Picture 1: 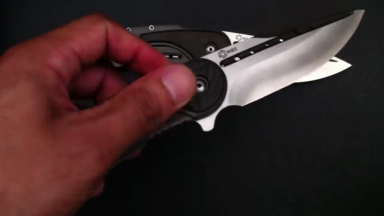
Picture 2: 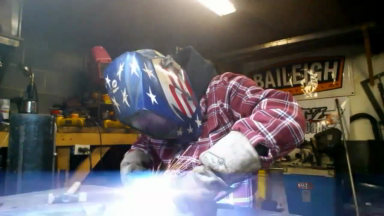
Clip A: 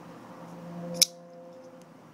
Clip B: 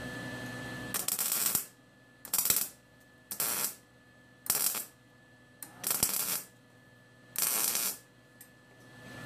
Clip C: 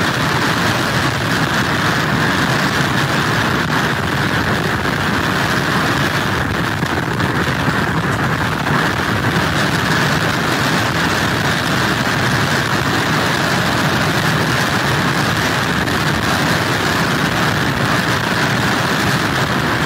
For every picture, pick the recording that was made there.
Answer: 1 A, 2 B